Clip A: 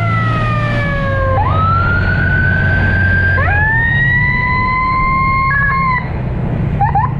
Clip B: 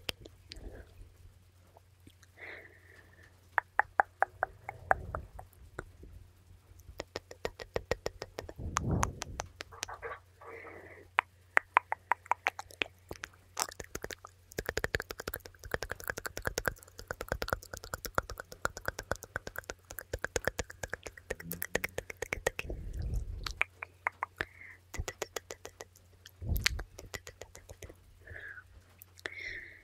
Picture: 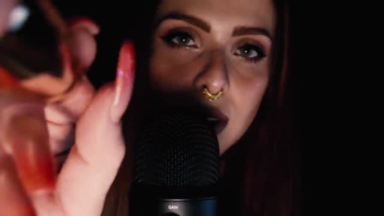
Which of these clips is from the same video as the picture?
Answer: B